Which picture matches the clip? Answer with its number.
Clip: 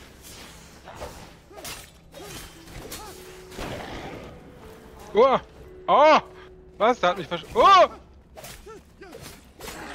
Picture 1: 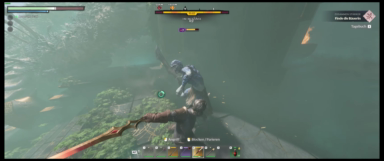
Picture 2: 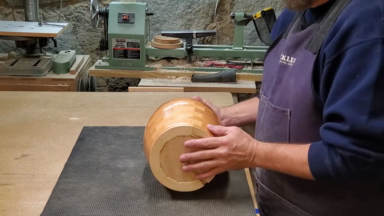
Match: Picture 1